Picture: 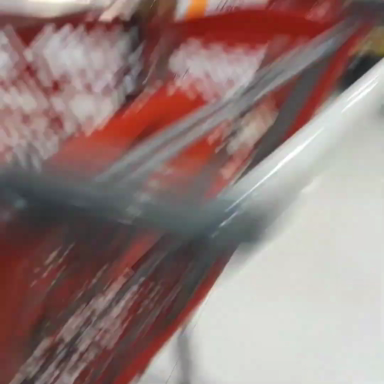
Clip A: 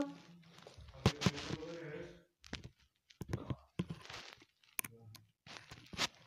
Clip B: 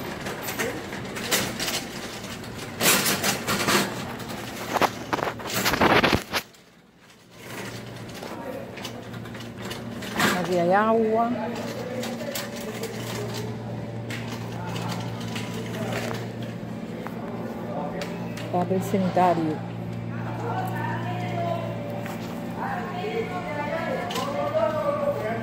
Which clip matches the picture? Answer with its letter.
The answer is B